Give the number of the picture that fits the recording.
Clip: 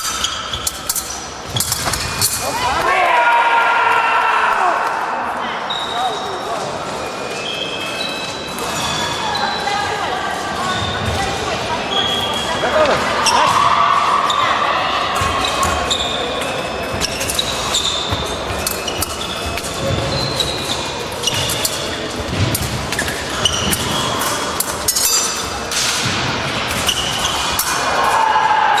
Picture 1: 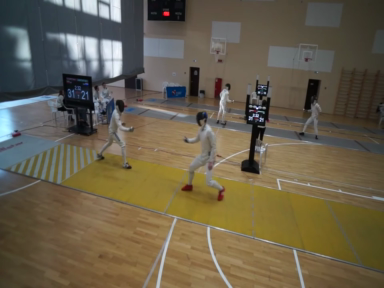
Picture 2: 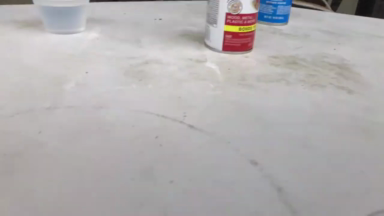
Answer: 1